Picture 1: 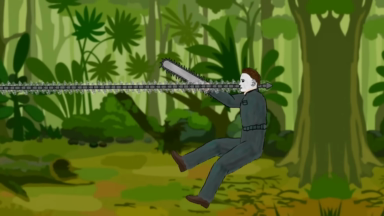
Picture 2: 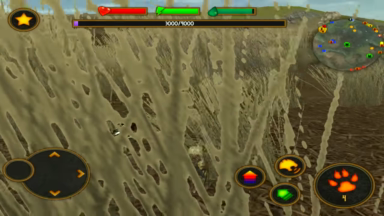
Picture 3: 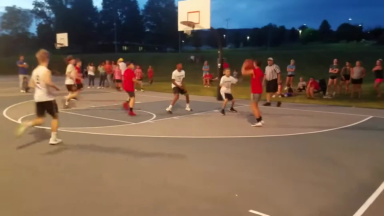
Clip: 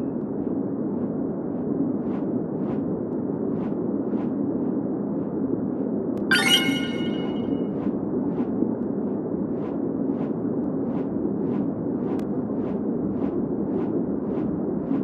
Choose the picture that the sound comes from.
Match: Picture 2